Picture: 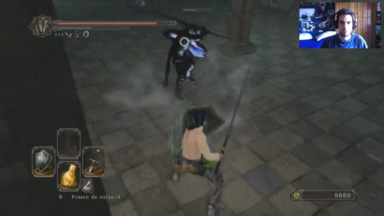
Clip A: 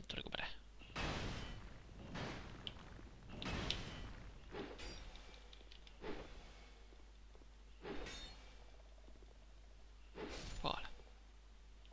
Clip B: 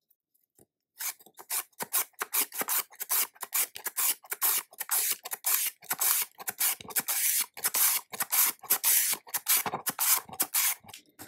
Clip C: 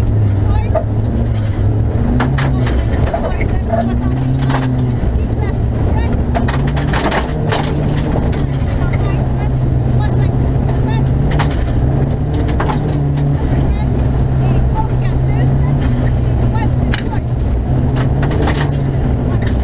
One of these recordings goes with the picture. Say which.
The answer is A